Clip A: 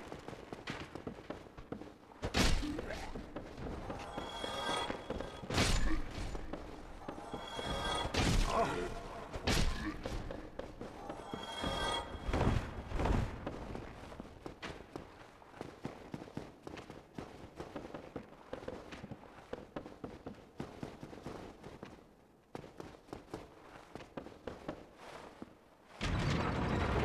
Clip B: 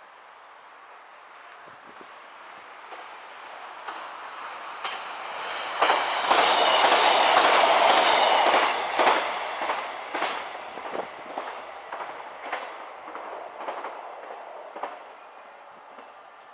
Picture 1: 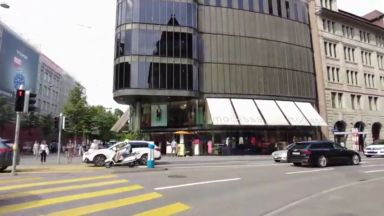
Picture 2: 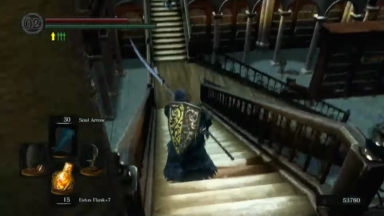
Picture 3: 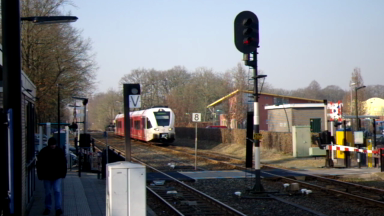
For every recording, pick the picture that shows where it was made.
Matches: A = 2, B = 3